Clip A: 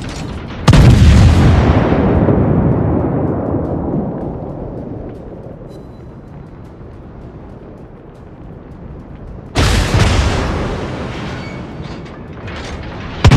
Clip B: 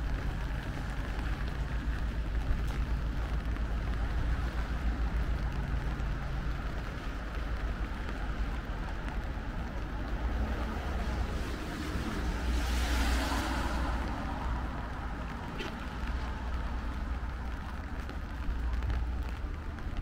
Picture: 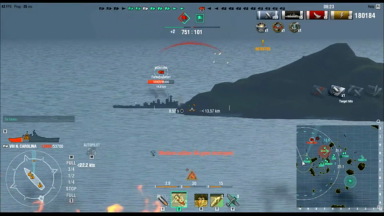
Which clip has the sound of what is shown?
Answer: A